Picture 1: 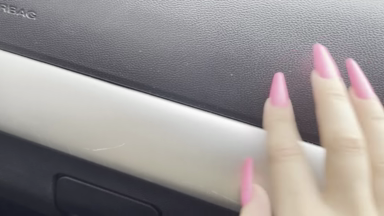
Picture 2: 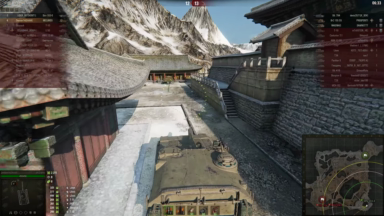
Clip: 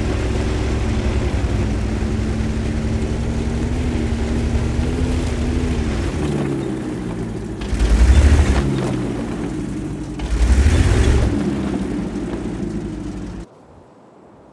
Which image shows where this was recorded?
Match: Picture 2